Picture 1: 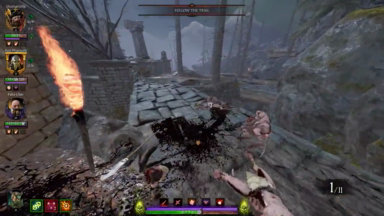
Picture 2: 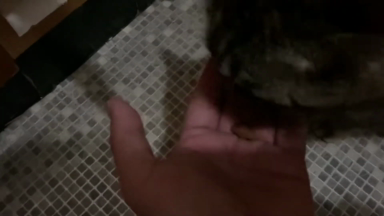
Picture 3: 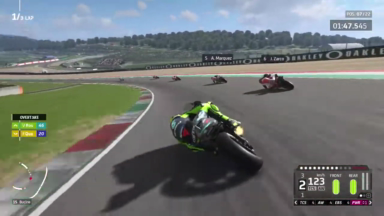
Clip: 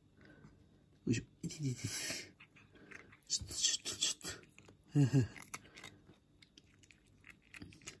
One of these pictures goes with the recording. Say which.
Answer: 2